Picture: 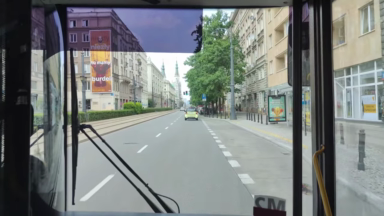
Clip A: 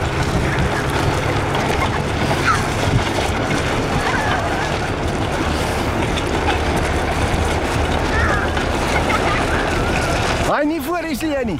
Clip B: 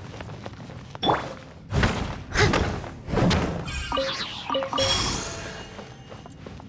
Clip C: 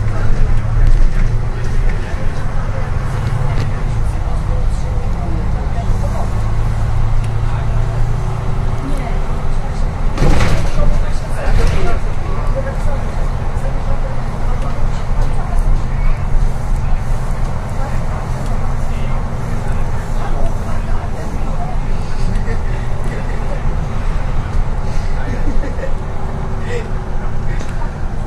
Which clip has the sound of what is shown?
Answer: C